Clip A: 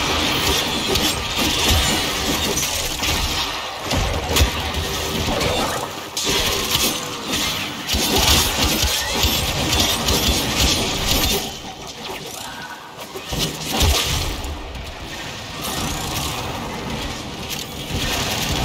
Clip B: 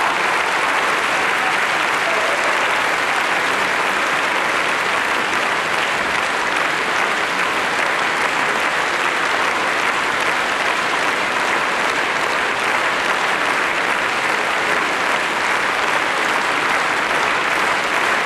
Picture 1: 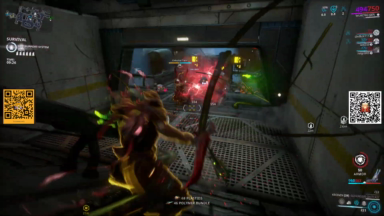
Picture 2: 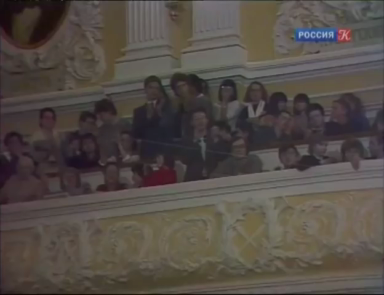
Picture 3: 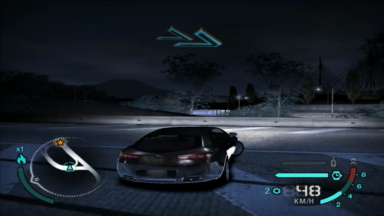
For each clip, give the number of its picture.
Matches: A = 1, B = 2